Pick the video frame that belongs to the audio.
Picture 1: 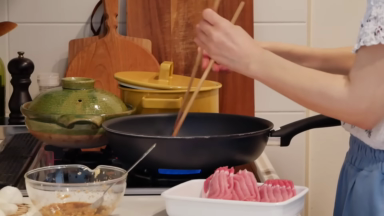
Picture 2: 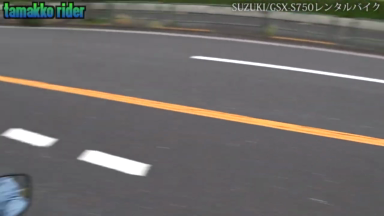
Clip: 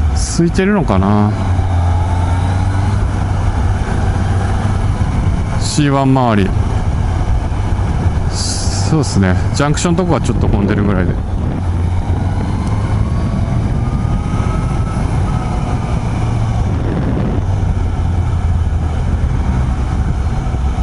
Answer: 2